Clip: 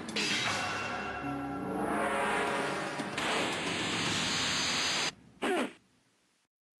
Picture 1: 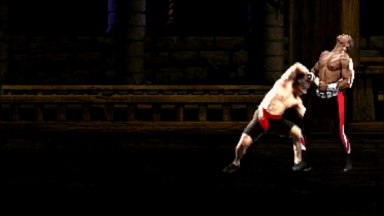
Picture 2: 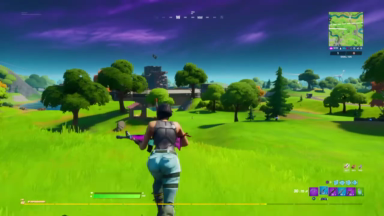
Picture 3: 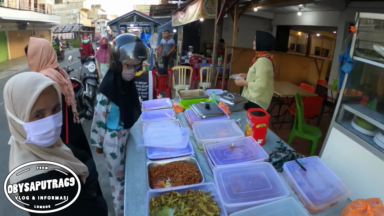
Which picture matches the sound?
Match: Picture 1